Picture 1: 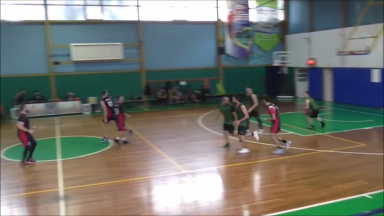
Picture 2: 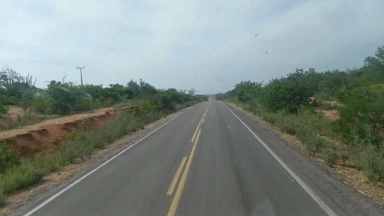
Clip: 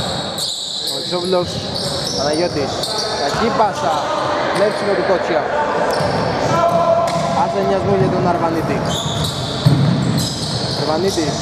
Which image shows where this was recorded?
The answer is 1